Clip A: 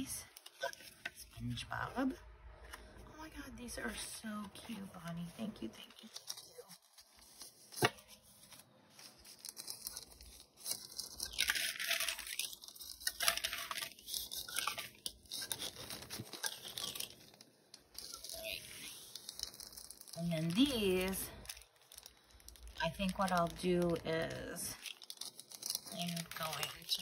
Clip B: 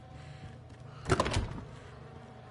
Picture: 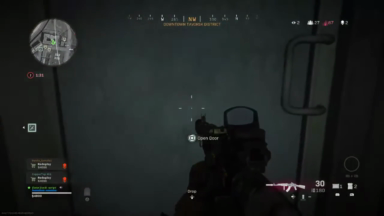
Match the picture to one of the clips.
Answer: B